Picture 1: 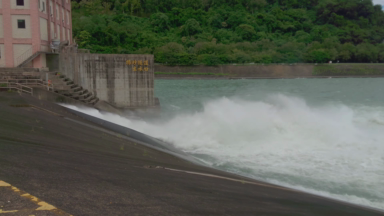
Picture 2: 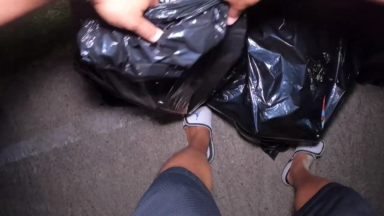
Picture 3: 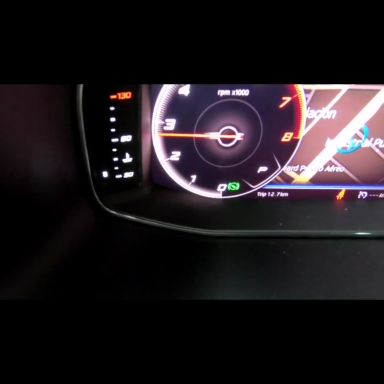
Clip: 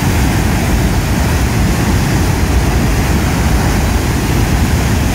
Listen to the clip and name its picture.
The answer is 1